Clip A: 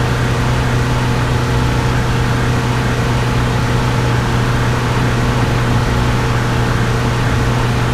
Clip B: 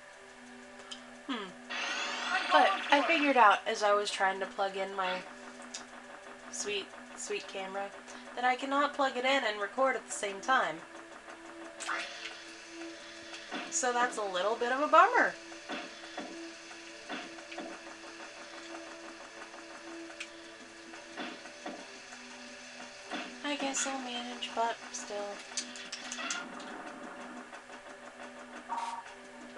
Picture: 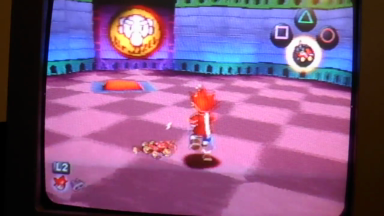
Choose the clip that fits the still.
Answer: B